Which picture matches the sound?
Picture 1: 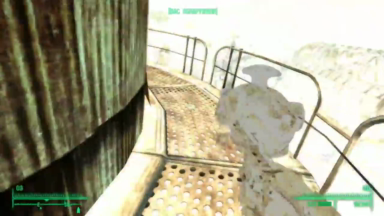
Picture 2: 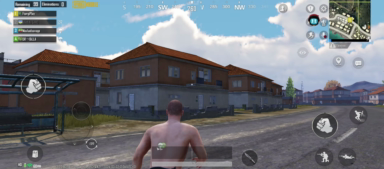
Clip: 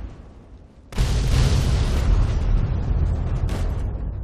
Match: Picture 1